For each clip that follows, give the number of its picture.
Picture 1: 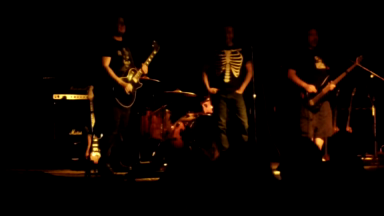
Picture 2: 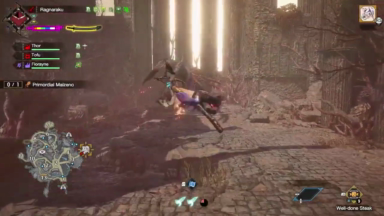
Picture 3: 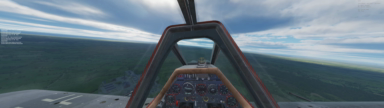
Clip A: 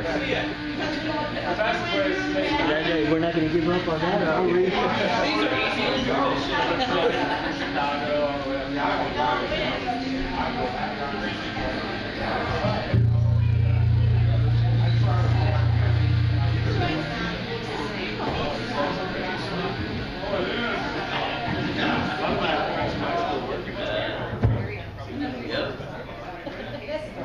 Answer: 1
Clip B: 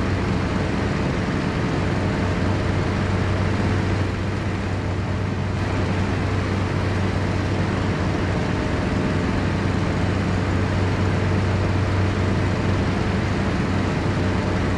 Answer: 3